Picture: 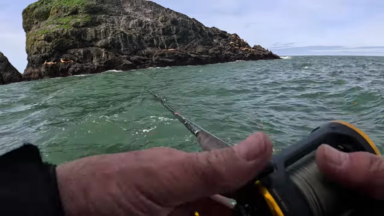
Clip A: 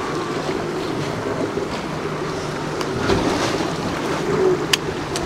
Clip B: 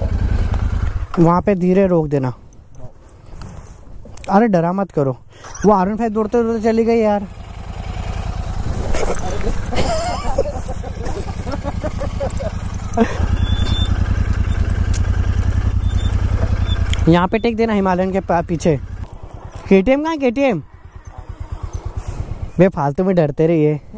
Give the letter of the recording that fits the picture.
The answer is A